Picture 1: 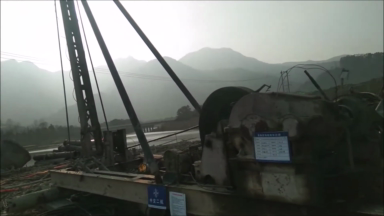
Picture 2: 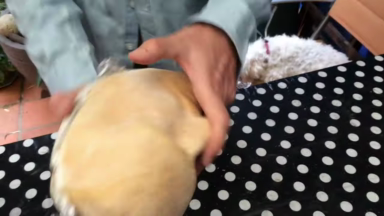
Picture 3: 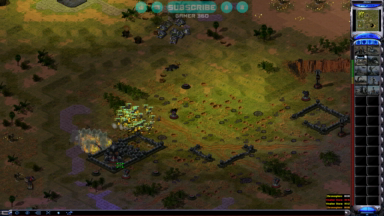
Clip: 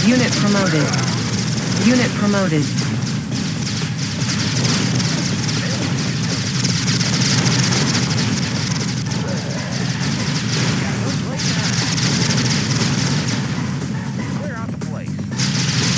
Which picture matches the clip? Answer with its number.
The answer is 3